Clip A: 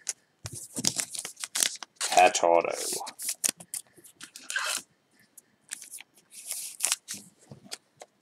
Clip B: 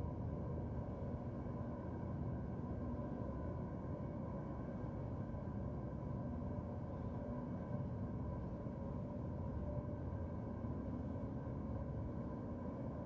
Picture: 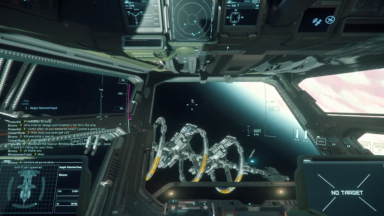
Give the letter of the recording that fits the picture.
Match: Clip B